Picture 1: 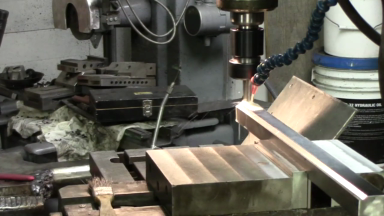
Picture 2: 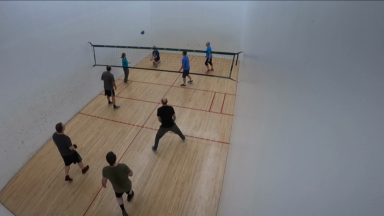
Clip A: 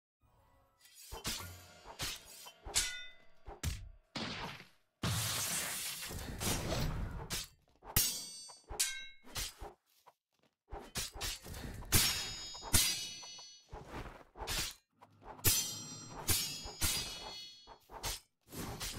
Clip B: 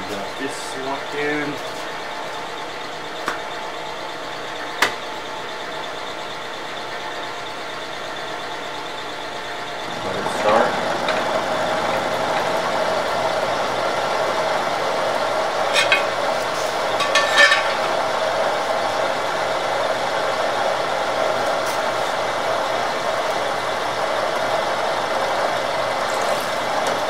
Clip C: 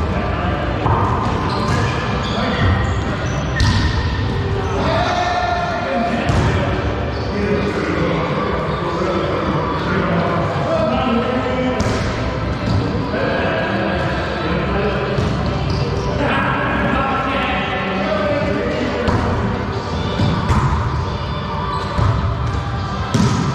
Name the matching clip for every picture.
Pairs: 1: B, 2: C